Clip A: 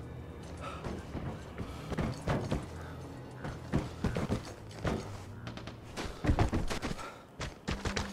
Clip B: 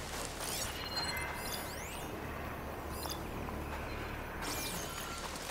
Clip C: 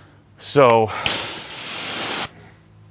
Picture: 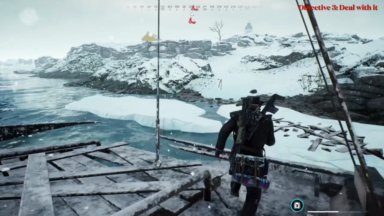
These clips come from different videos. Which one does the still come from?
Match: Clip A